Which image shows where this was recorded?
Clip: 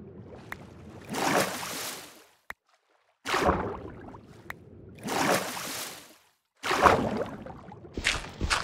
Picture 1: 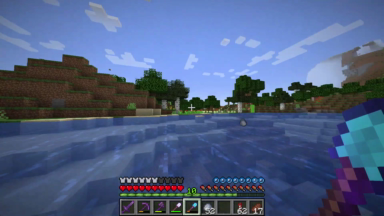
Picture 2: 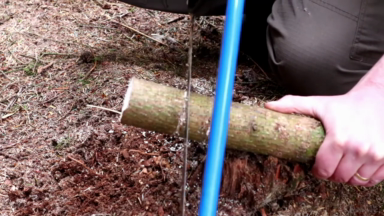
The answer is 1